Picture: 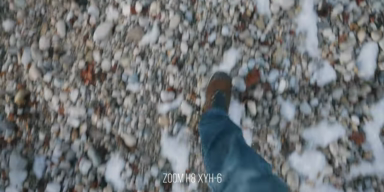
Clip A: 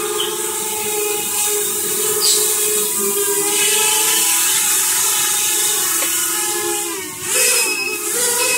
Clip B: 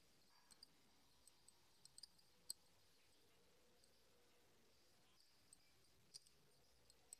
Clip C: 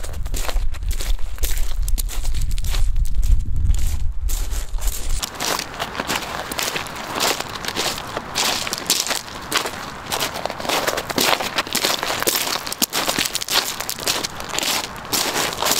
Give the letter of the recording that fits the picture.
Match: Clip C